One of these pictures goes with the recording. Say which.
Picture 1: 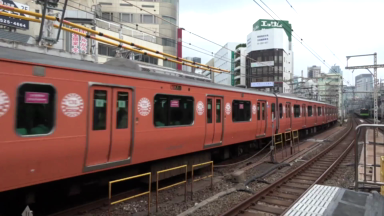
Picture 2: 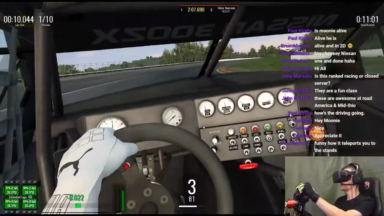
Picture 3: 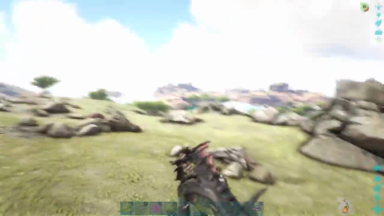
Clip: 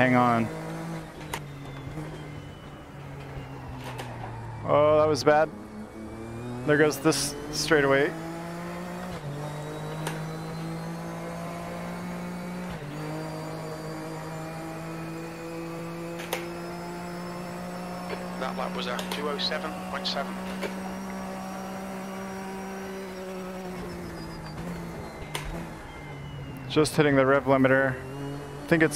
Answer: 2